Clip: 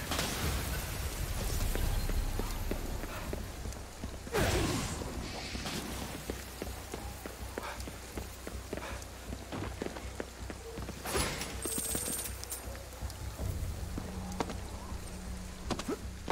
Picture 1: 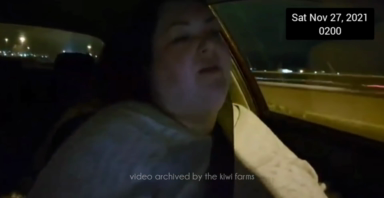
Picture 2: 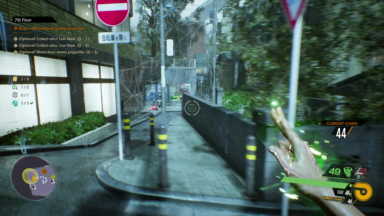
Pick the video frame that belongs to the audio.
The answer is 2